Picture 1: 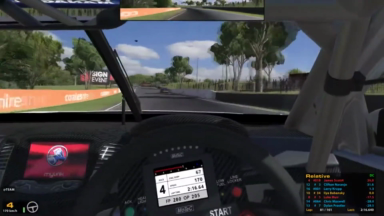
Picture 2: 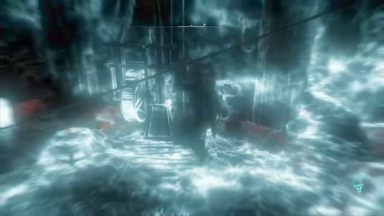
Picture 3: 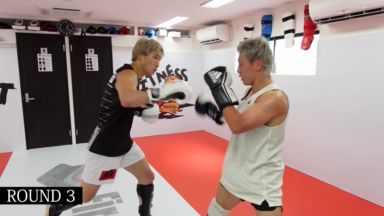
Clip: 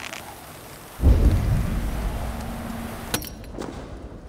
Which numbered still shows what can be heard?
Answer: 2